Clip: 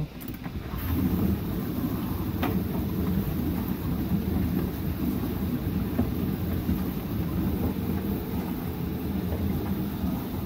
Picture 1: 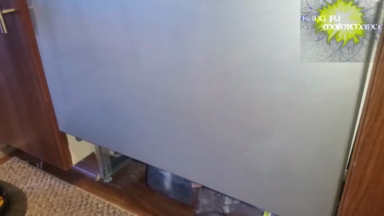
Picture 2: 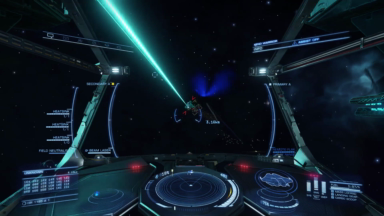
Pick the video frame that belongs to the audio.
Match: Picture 1